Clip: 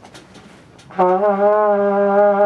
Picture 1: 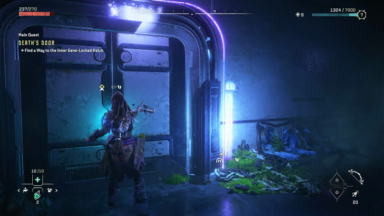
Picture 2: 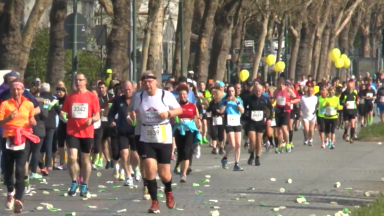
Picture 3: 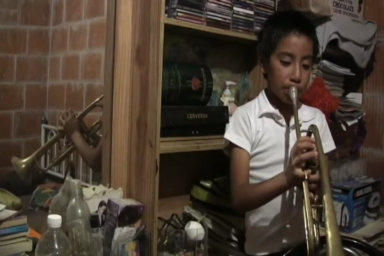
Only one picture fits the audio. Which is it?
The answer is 3